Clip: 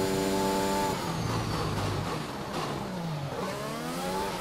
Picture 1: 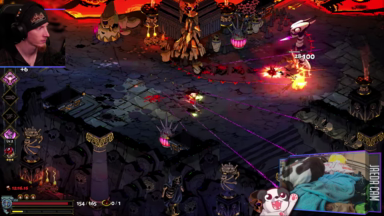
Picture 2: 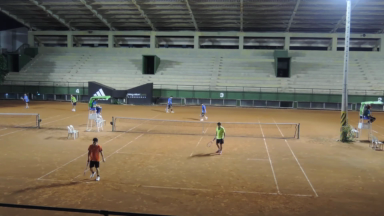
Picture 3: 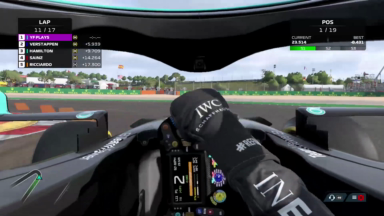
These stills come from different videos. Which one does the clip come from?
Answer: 3